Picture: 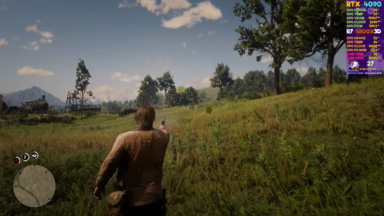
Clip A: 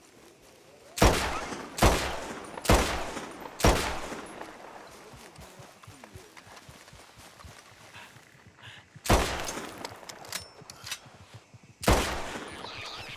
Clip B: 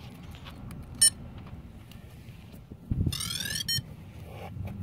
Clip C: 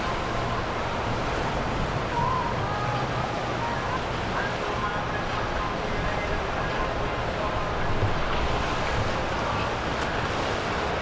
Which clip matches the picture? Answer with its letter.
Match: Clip A